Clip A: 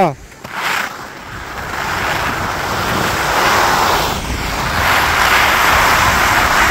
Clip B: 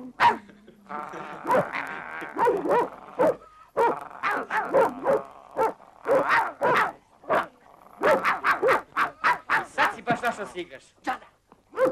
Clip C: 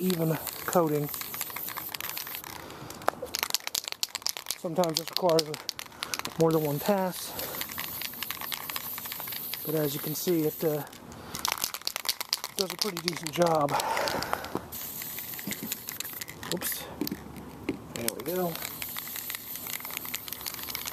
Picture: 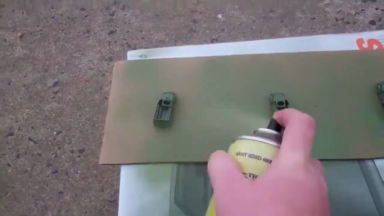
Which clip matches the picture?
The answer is C